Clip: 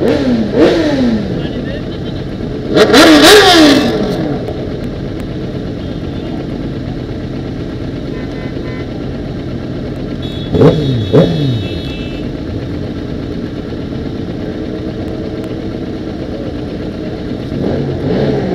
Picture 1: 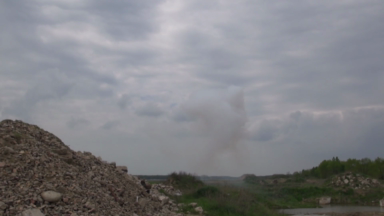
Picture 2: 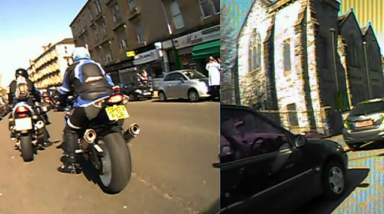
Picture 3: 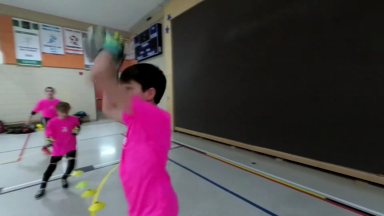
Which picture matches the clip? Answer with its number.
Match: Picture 2